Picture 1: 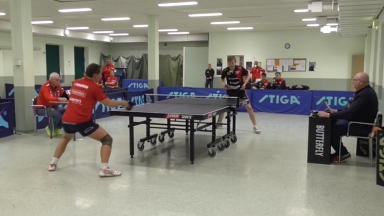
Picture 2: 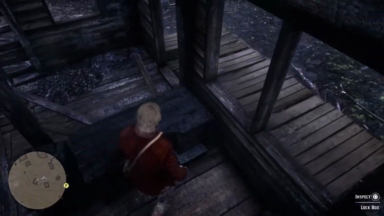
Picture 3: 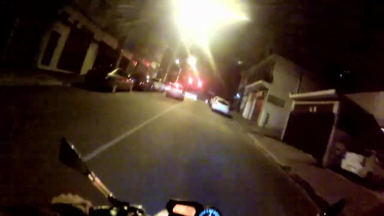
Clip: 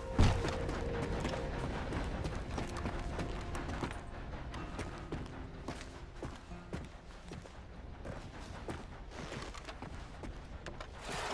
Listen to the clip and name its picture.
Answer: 2